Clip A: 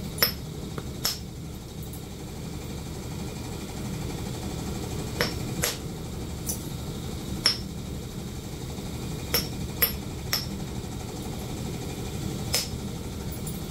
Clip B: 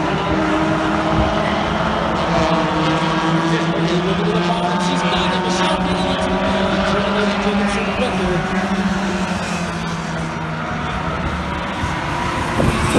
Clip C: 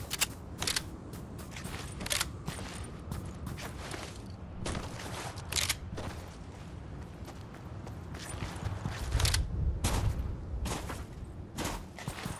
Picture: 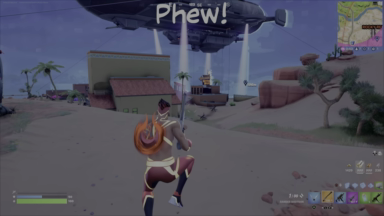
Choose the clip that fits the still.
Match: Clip C